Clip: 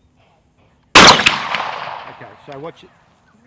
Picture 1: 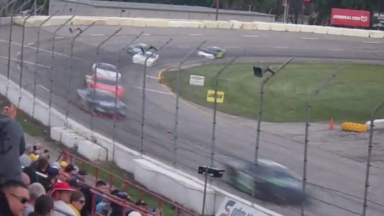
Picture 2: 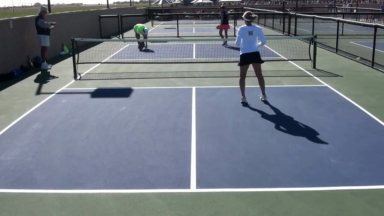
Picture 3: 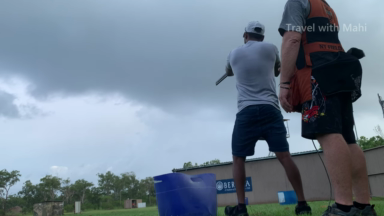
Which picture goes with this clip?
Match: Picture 3